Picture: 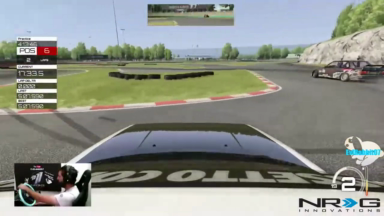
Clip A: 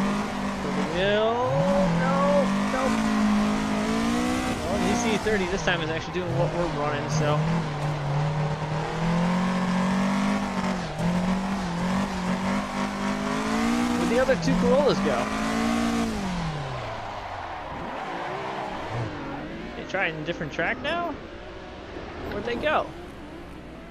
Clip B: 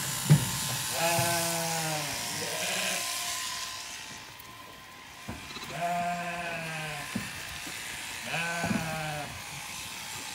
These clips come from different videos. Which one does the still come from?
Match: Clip A